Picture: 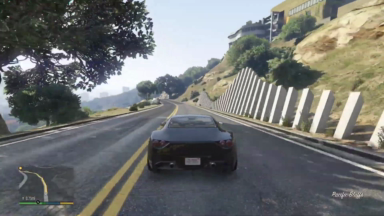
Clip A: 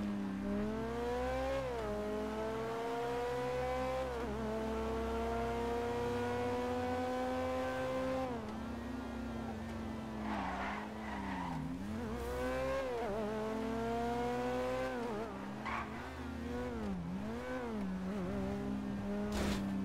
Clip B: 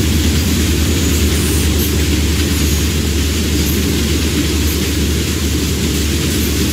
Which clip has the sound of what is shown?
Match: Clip A